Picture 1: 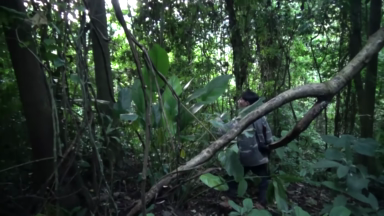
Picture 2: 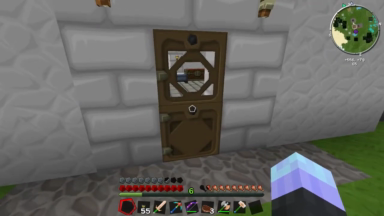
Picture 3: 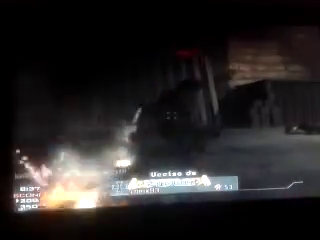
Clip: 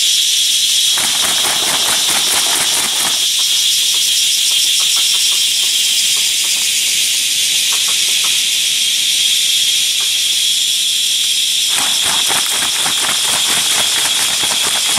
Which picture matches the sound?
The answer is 1